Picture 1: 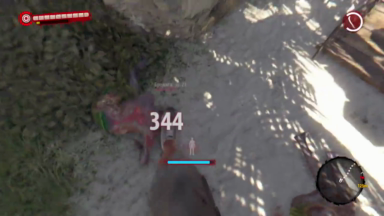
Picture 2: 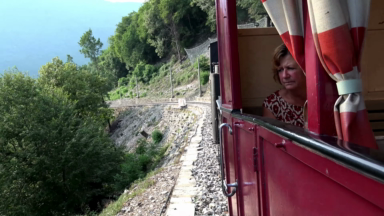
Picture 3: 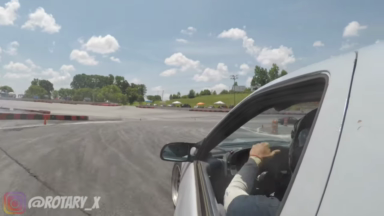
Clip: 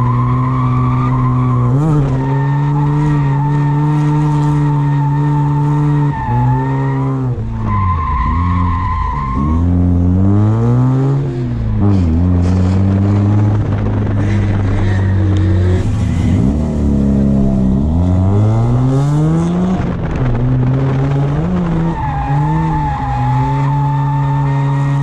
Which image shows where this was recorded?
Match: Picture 3